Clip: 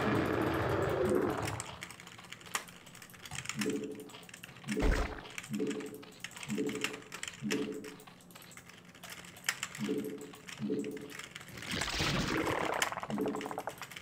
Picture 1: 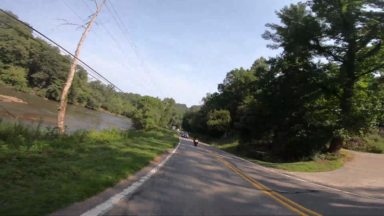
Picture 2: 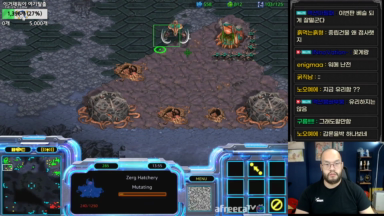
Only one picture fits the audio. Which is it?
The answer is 2